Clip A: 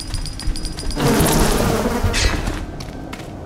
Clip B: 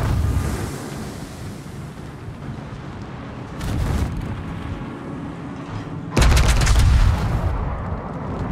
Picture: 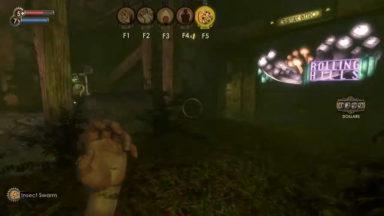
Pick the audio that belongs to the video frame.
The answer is A